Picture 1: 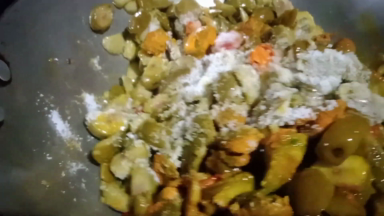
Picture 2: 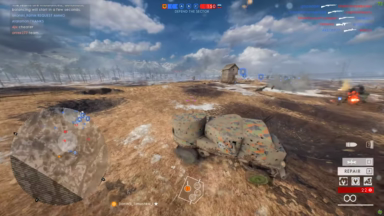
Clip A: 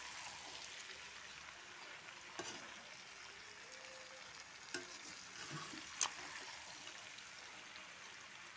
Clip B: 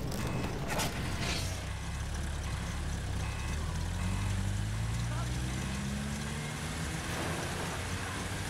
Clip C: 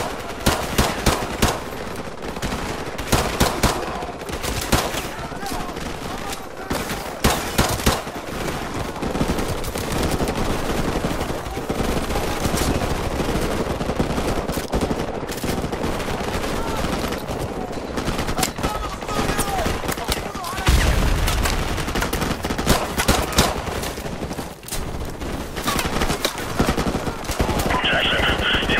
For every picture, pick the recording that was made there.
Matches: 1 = A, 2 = B